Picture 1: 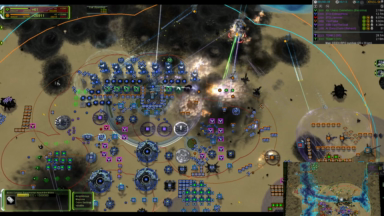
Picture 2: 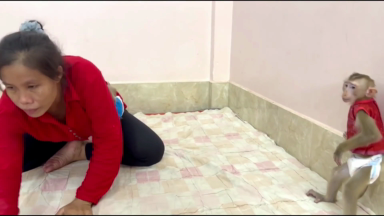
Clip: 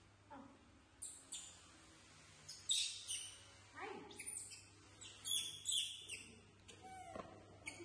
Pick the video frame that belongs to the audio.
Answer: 2